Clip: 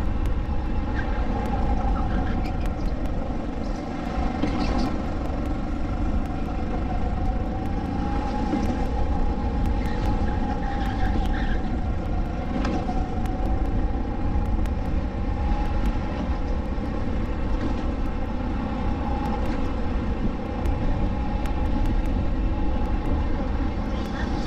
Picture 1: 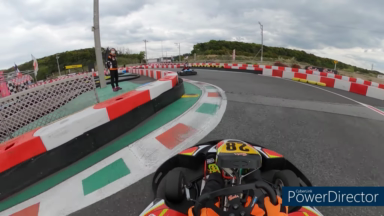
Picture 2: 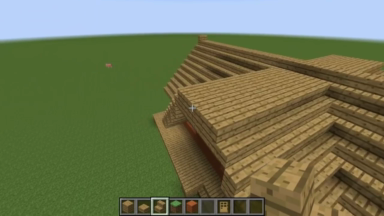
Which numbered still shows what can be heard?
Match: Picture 1